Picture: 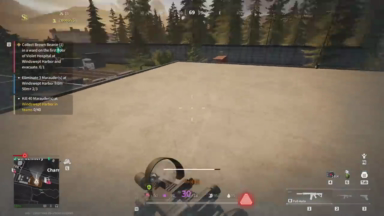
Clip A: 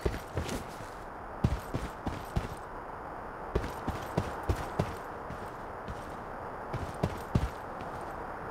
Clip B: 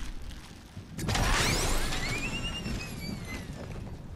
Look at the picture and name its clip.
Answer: A